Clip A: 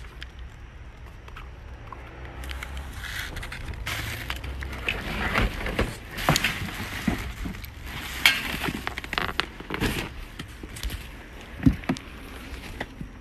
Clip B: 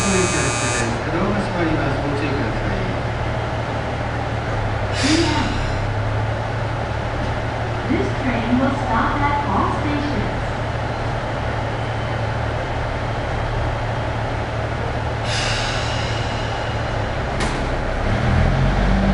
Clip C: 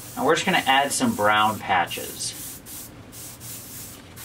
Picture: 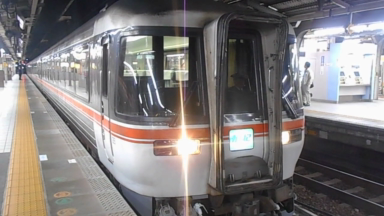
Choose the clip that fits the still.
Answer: B